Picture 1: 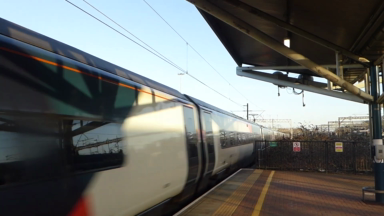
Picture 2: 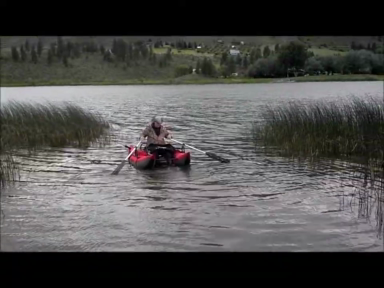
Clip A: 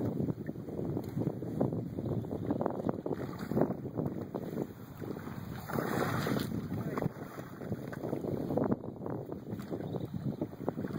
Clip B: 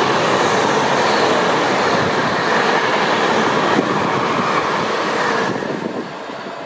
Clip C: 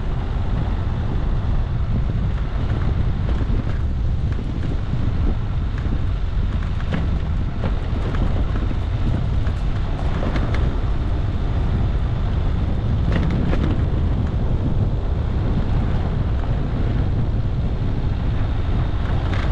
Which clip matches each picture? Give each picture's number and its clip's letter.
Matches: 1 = B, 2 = A